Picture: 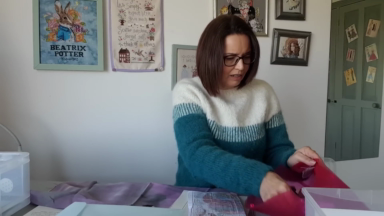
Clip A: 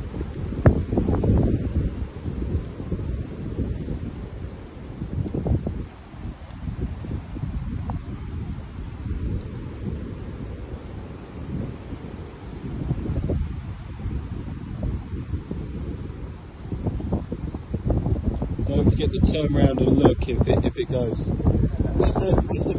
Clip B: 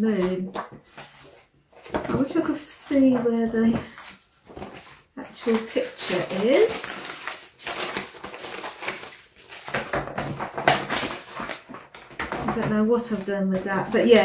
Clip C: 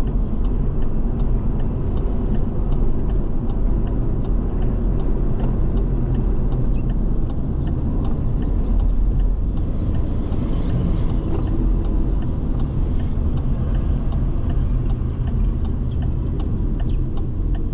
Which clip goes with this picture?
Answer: B